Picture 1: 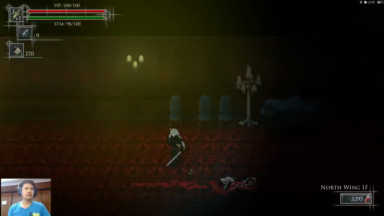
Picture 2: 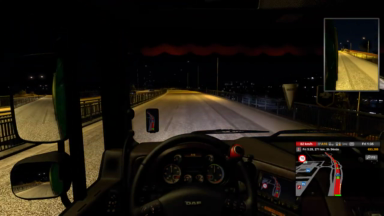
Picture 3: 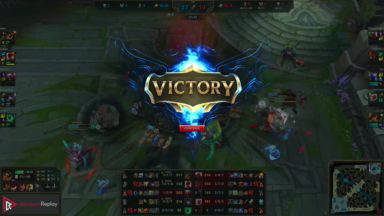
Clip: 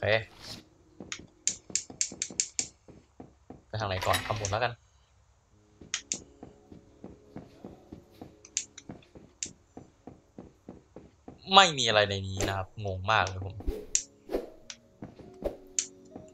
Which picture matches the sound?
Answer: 1